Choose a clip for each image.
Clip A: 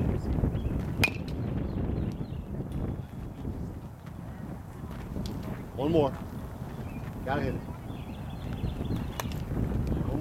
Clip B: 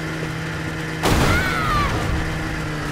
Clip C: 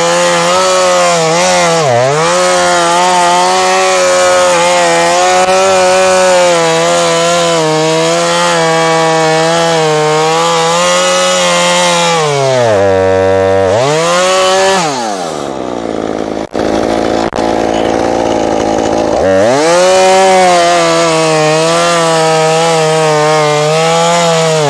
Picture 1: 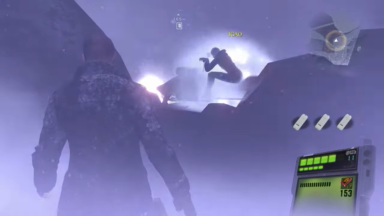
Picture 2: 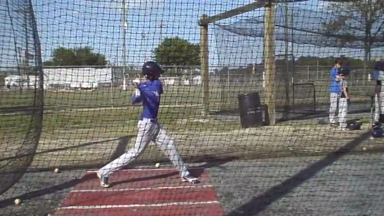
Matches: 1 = B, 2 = A